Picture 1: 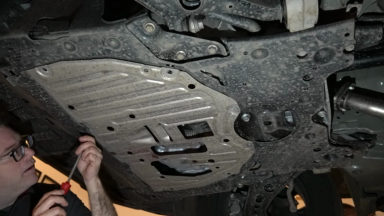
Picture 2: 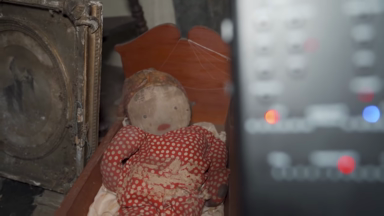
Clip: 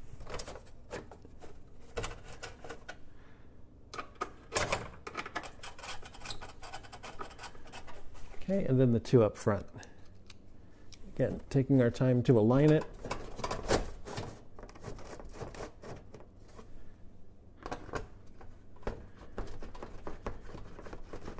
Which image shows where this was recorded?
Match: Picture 1